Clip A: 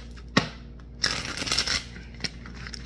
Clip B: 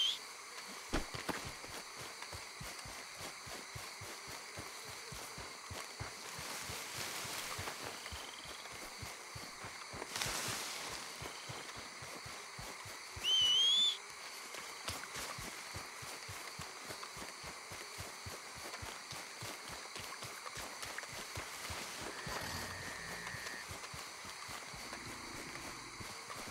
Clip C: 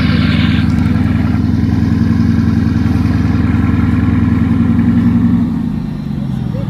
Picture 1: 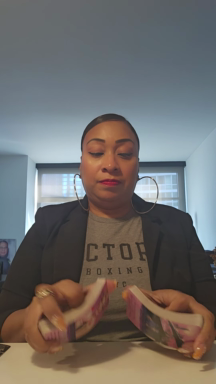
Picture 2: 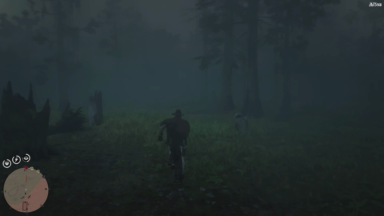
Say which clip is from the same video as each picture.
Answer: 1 A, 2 B